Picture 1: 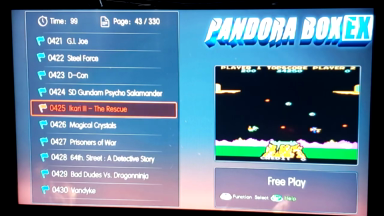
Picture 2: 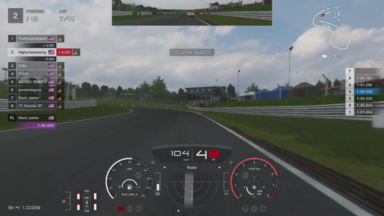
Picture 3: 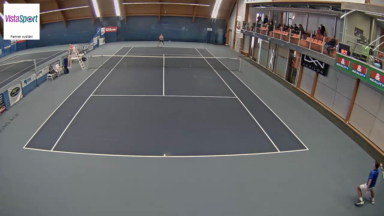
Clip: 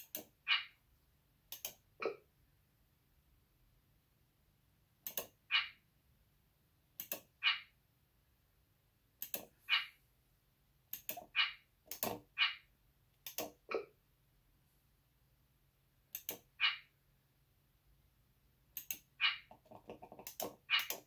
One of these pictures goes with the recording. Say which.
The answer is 1